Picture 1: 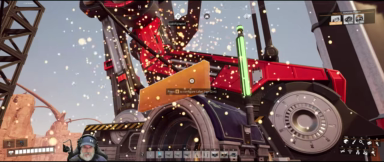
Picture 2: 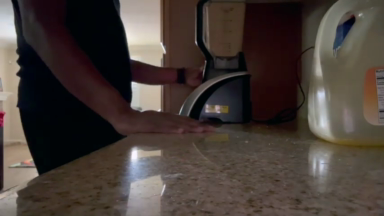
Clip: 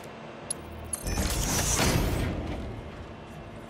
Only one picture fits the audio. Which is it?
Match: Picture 1